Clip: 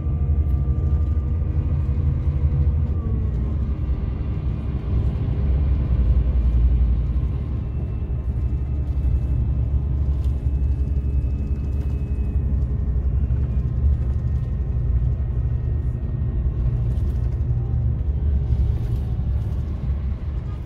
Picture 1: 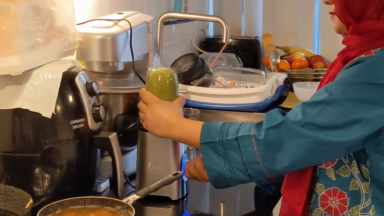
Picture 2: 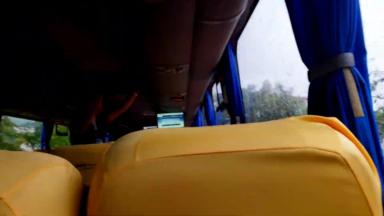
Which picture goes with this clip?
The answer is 2